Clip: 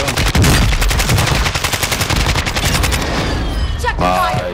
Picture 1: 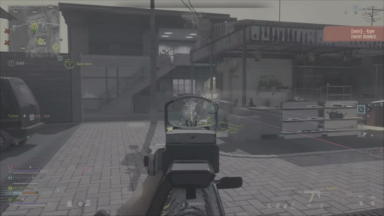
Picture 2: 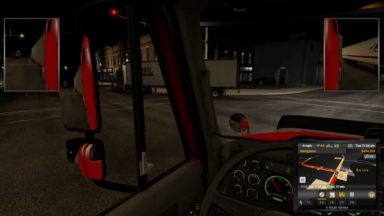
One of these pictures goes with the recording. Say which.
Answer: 1